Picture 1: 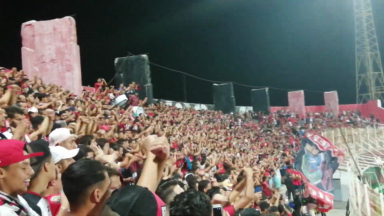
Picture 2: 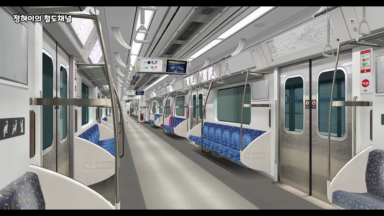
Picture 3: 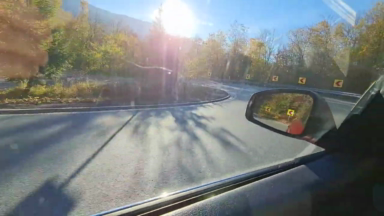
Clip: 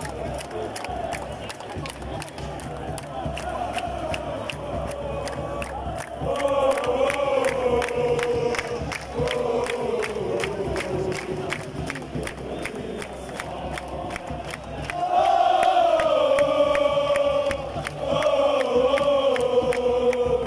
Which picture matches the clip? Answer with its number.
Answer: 1